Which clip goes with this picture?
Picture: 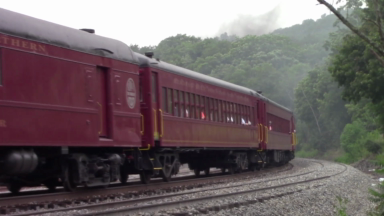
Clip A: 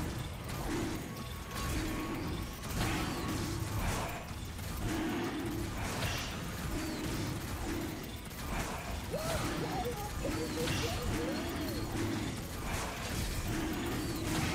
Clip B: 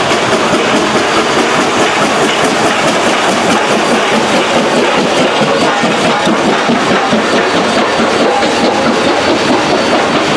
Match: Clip B